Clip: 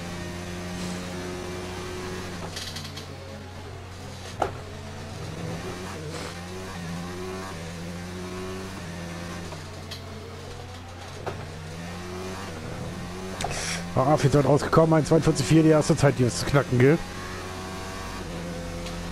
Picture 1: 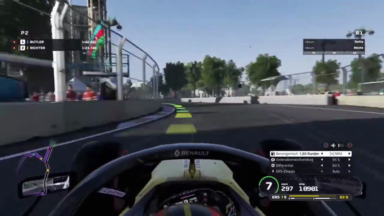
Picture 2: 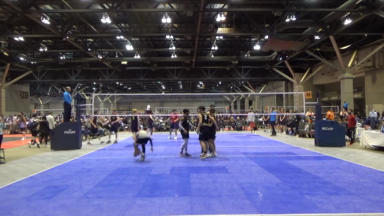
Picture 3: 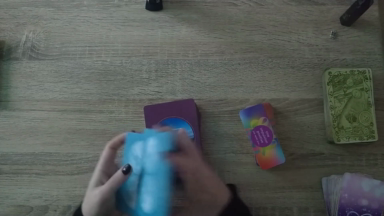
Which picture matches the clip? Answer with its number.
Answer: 1